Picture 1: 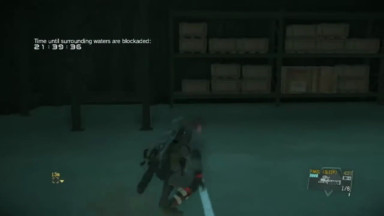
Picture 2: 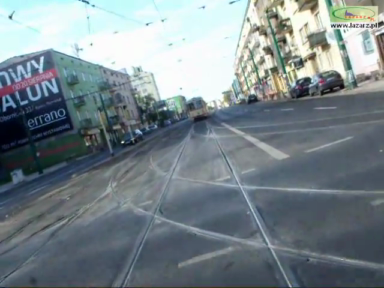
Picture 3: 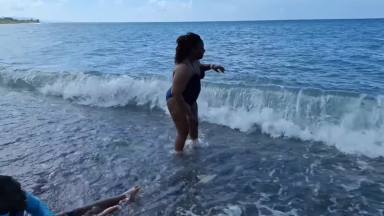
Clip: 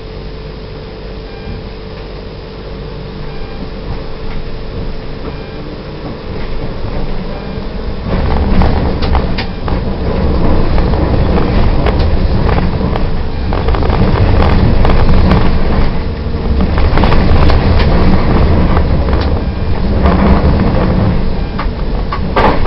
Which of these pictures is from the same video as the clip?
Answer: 2